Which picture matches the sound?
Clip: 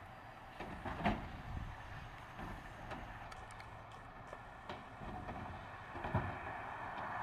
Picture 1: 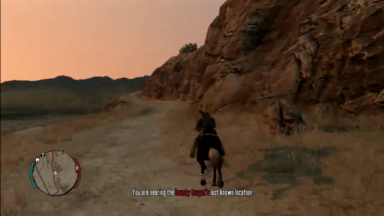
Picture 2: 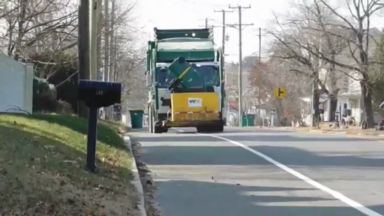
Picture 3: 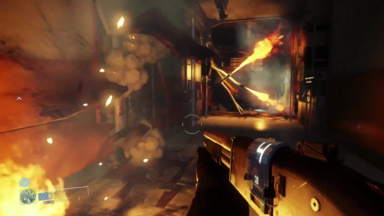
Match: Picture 2